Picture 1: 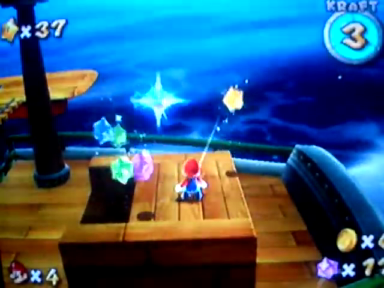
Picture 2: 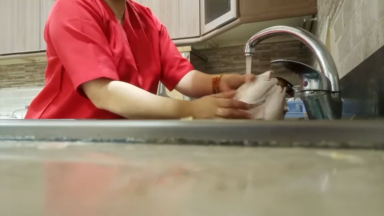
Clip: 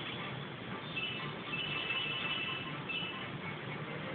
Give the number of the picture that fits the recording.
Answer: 1